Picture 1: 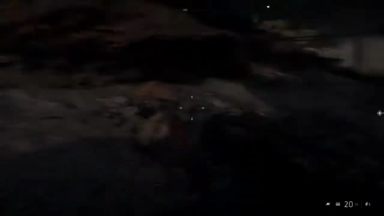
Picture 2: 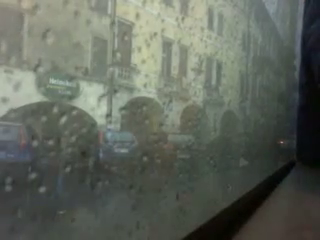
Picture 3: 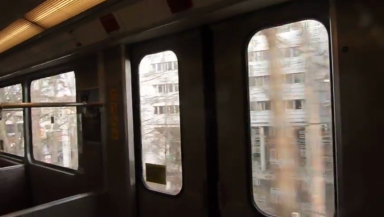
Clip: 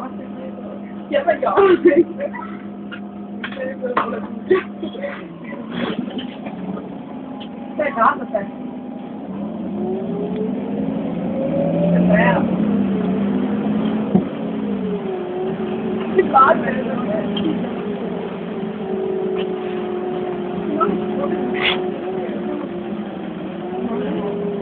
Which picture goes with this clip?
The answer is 2